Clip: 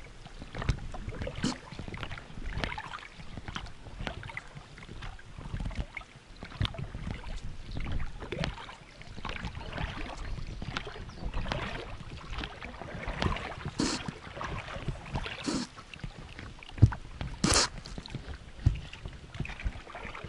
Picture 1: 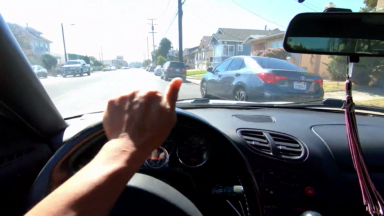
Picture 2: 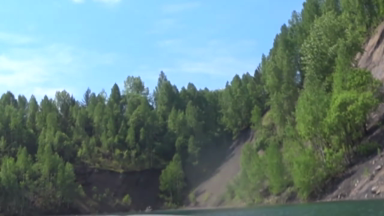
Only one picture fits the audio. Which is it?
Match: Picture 2